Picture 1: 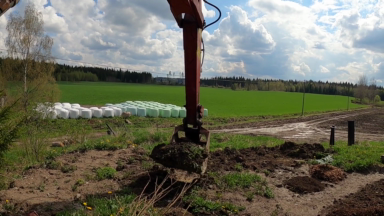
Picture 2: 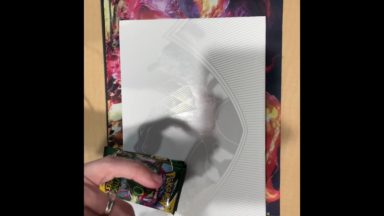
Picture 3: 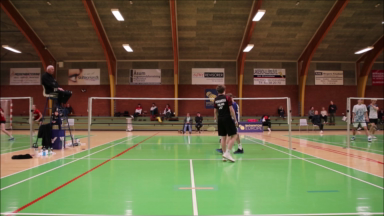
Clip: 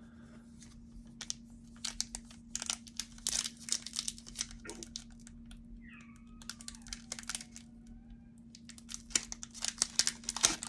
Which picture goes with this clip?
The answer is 2